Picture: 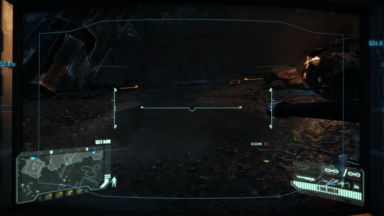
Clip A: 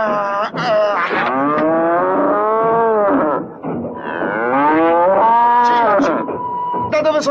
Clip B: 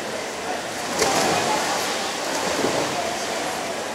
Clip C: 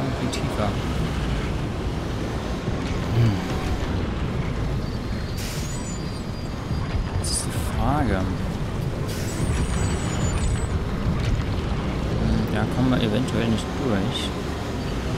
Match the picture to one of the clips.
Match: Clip C